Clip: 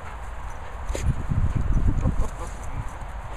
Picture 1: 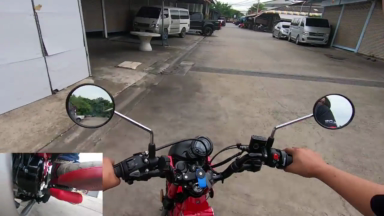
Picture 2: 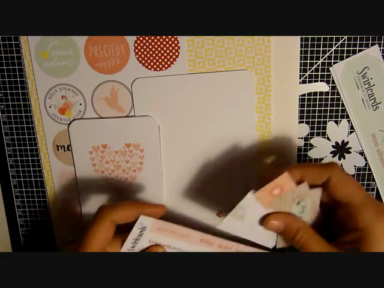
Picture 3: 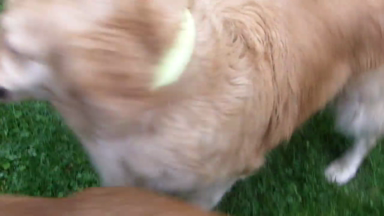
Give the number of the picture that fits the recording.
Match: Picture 3